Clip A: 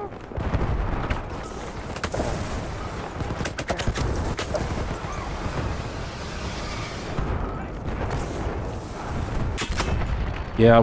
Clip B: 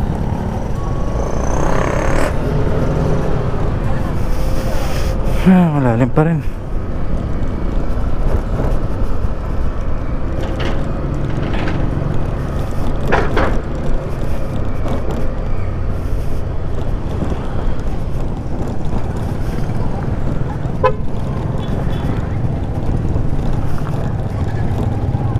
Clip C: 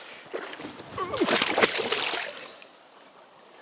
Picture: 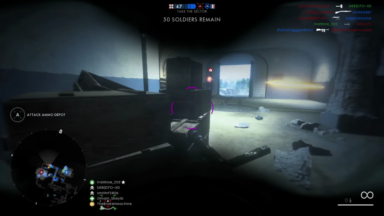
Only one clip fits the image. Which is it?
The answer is A